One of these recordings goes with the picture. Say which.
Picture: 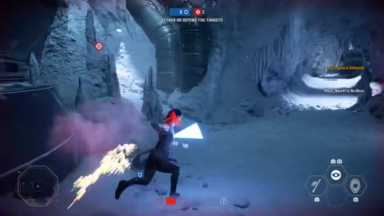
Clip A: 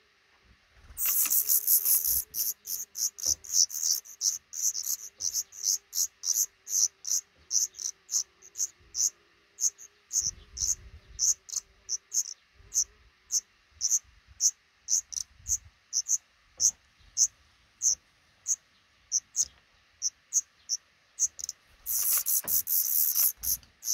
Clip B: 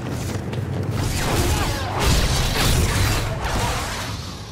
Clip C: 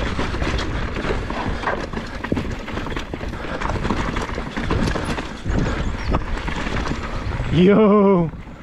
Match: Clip B